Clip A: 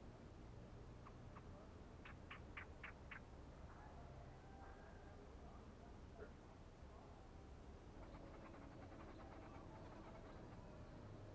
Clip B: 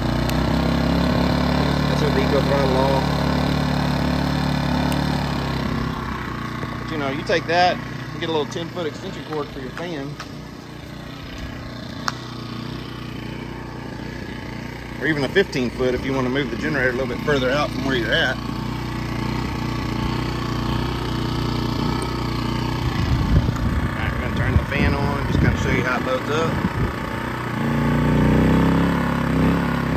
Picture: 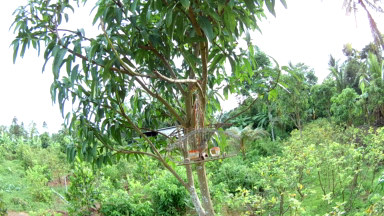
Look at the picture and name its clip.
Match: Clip A